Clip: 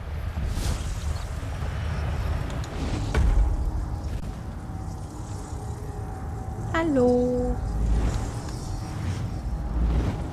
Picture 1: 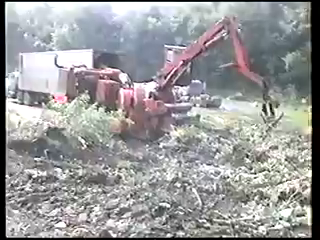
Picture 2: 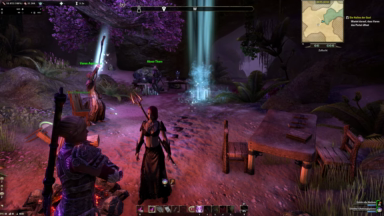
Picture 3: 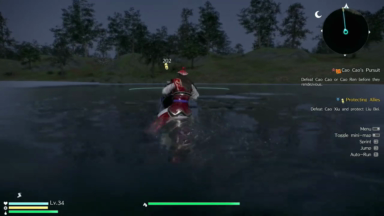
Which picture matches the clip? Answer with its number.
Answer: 2